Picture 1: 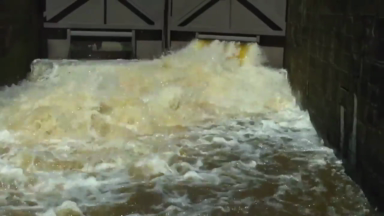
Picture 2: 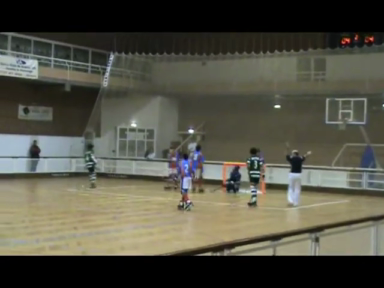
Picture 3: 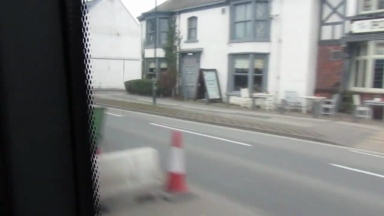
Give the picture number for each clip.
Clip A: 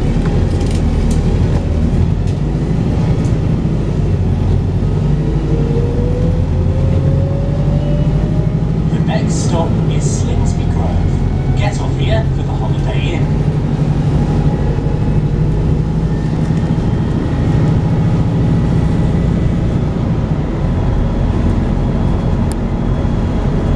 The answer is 3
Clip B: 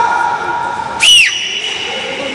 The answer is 2